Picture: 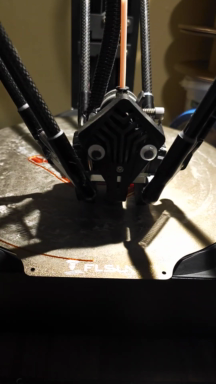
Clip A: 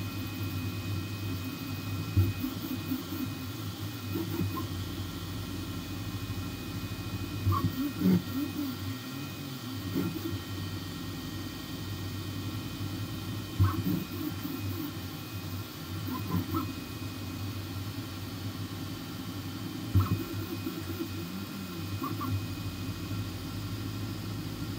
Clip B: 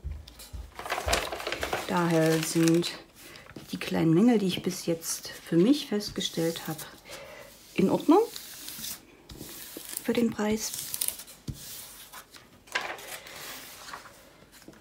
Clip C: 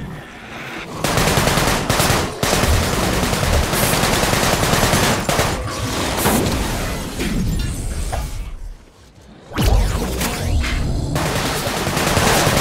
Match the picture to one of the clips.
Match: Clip A